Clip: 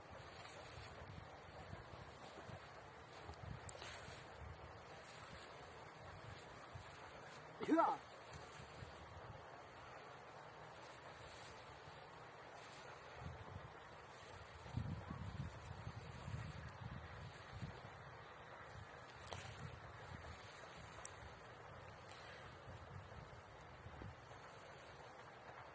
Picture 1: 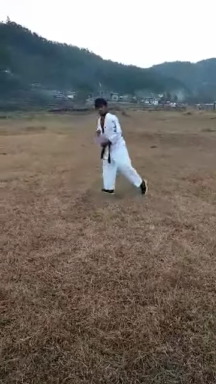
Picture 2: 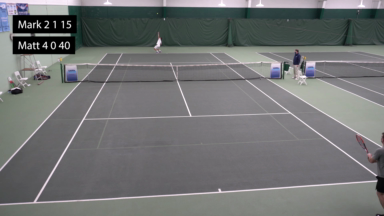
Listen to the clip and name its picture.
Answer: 1